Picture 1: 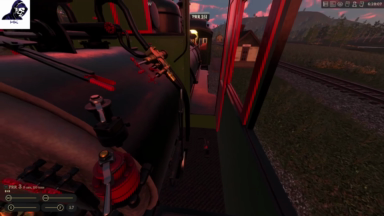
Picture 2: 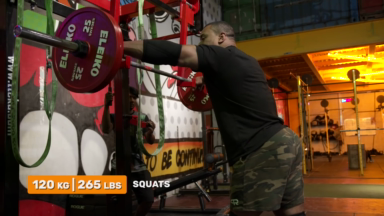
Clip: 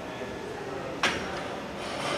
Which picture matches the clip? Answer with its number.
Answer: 2